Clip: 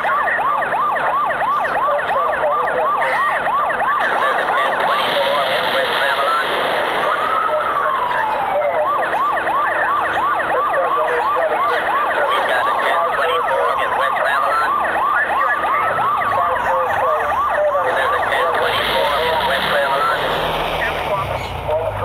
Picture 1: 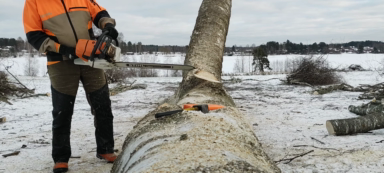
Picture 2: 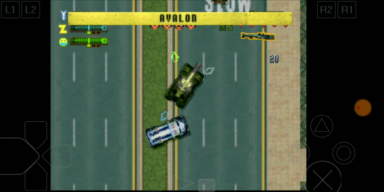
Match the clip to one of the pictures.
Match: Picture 2